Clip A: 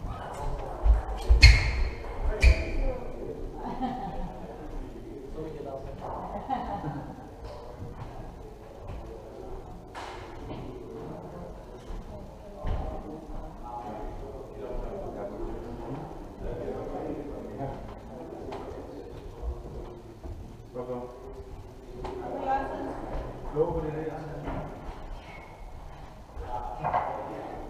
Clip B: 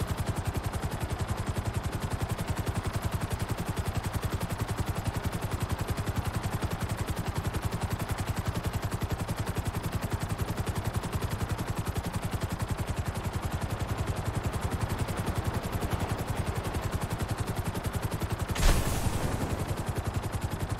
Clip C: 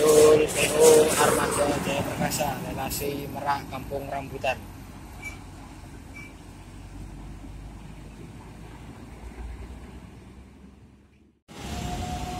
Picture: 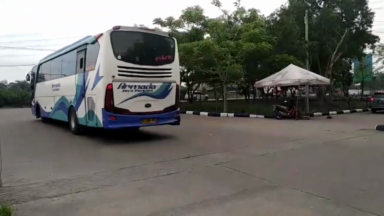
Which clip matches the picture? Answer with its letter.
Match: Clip C